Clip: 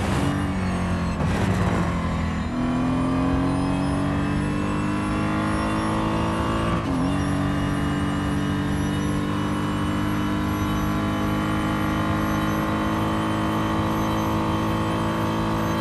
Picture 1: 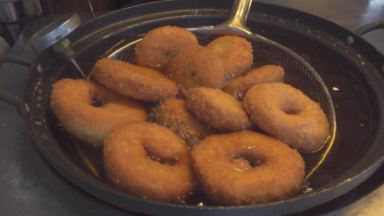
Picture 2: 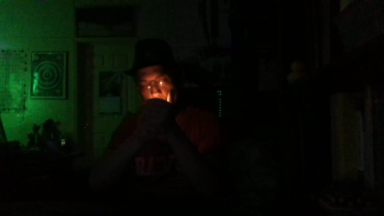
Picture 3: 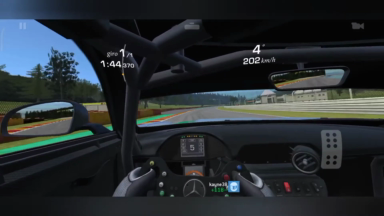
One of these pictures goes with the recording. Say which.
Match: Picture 3